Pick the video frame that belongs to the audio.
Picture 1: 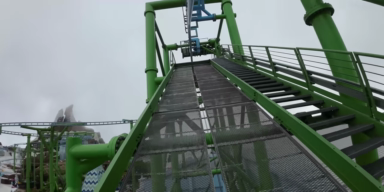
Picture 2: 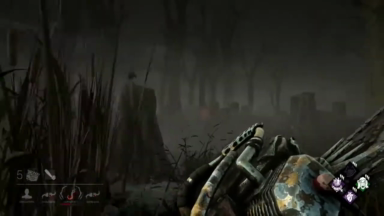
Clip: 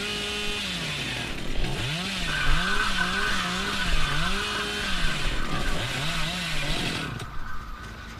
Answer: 2